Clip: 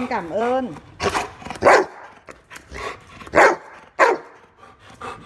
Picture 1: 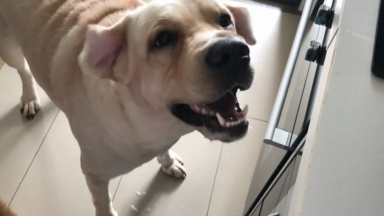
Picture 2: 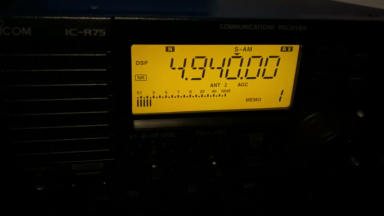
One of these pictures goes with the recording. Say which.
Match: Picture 1